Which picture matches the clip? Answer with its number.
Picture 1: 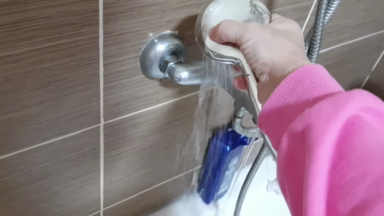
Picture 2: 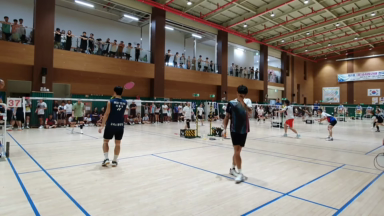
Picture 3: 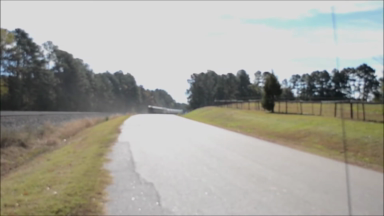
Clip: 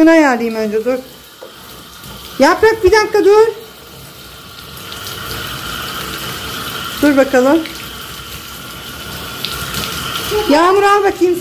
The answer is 1